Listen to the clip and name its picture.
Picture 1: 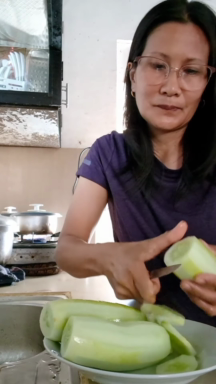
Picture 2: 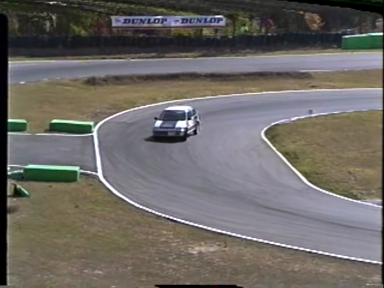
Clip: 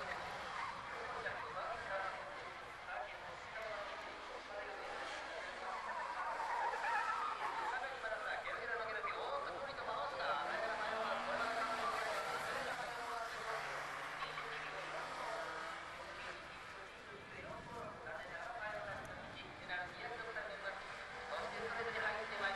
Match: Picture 2